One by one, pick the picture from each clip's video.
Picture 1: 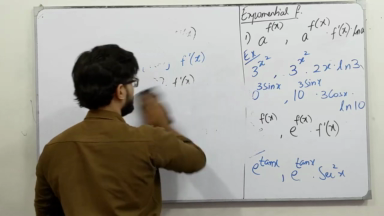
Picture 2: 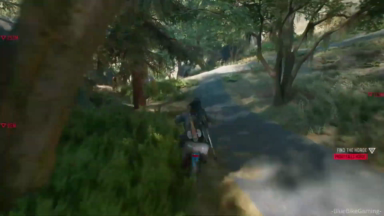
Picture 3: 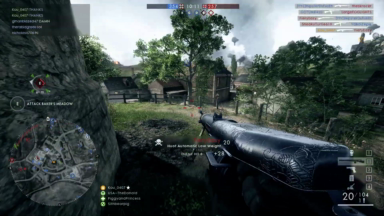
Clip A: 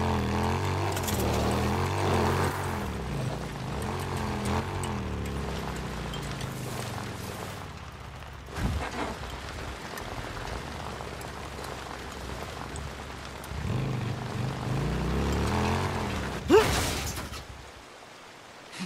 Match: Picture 2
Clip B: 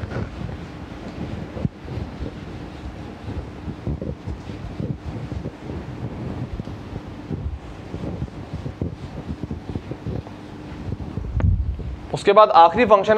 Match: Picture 1